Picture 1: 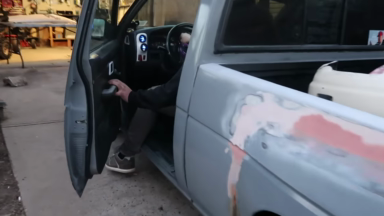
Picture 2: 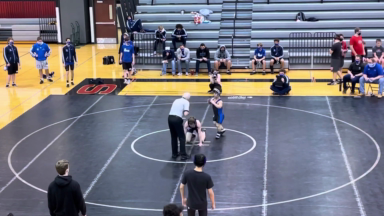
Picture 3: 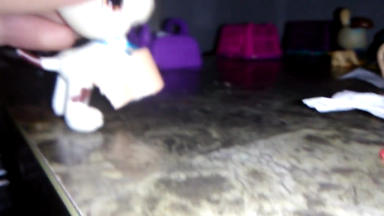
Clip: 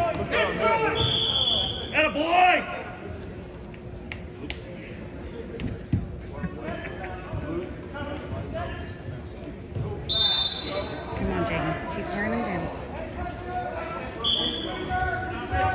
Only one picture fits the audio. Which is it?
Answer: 2